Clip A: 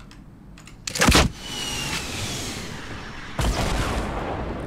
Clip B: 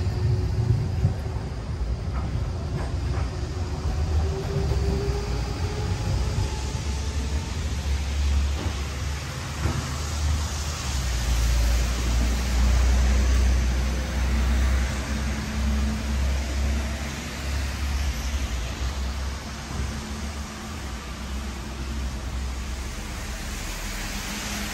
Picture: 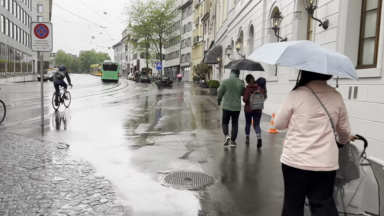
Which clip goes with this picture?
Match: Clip B